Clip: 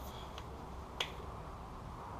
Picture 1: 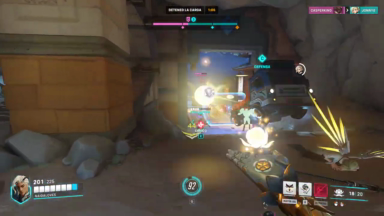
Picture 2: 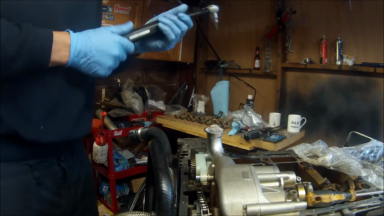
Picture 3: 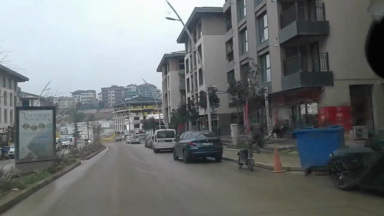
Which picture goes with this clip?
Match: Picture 2